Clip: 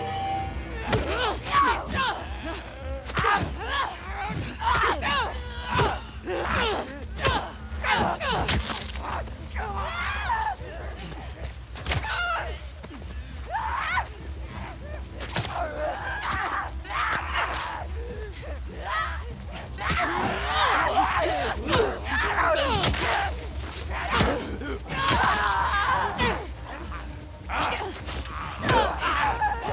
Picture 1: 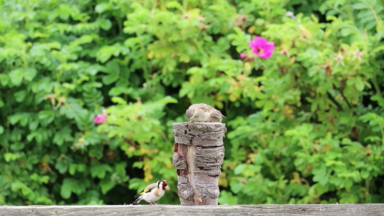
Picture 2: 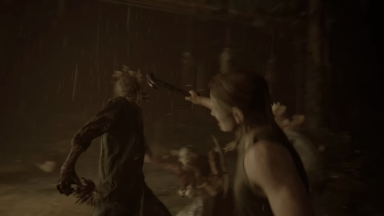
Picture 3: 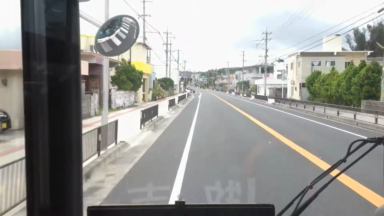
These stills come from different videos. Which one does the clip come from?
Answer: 2